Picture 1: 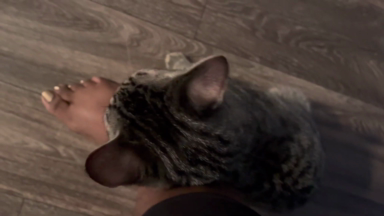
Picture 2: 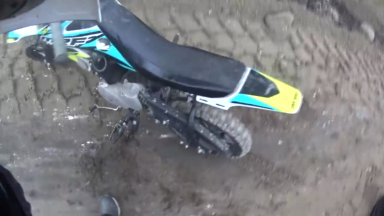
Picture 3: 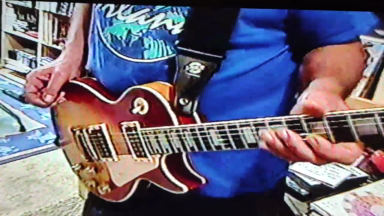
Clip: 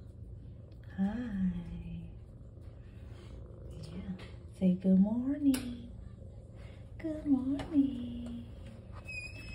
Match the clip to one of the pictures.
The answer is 1